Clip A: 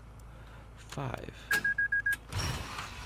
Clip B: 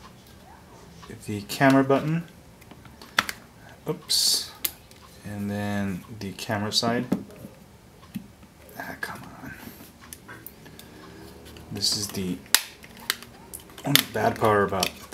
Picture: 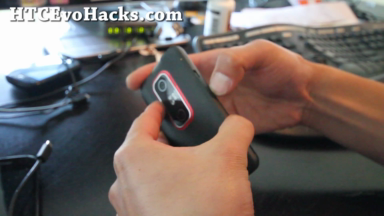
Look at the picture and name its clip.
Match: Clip B